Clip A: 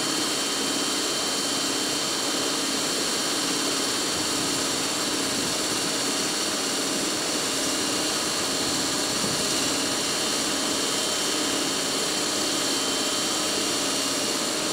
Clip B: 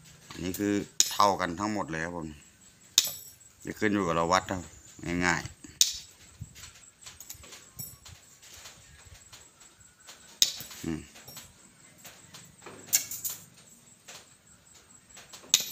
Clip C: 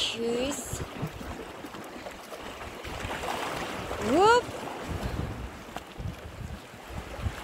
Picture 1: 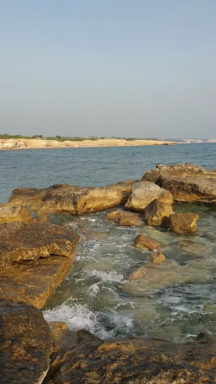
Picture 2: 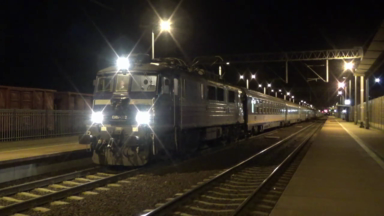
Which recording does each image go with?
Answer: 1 C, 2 A